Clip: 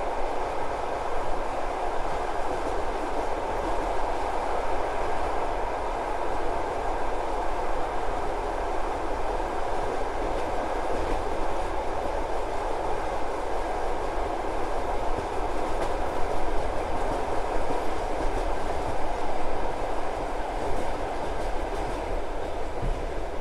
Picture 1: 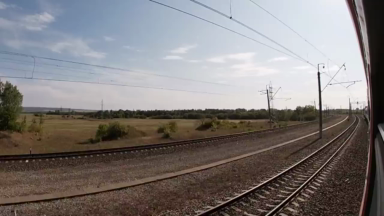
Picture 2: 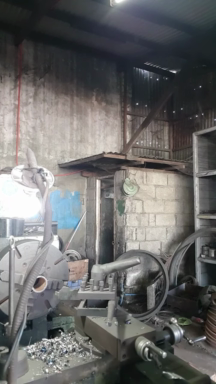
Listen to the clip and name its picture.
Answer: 1